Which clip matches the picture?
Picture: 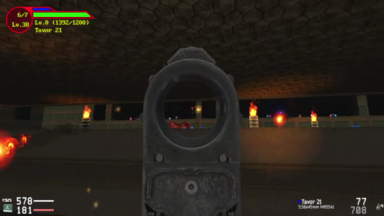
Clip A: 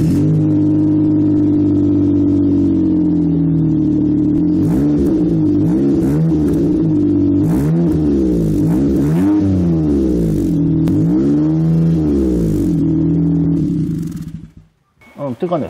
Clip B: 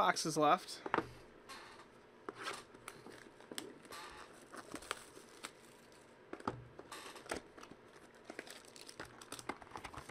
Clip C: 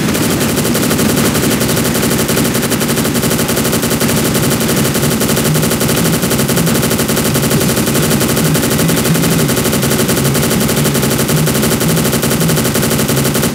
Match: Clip C